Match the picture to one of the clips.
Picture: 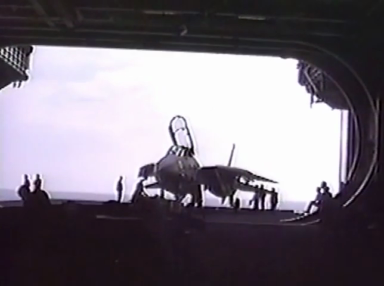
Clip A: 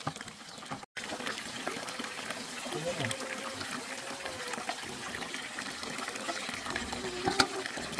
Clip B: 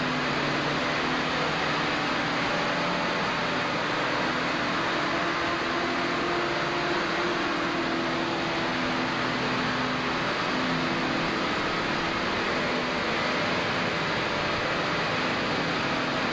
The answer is B